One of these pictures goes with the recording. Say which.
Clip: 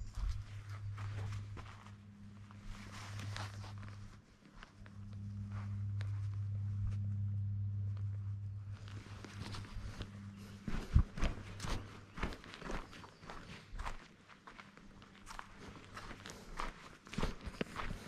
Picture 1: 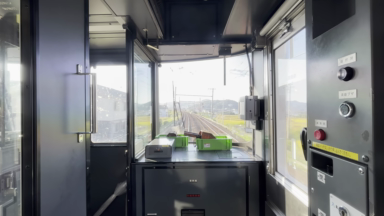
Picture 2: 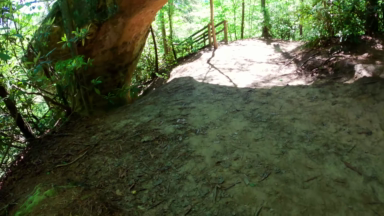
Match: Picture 2